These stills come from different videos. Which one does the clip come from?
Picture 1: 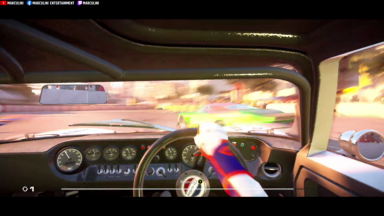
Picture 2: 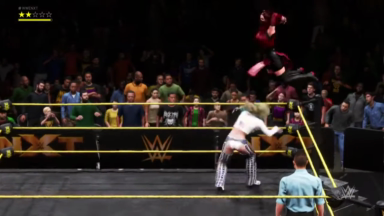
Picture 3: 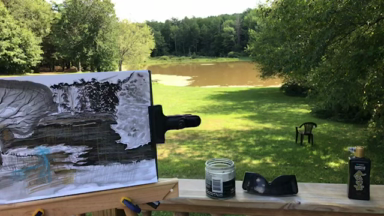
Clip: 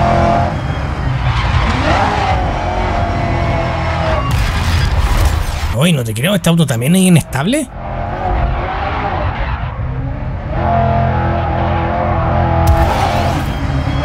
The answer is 1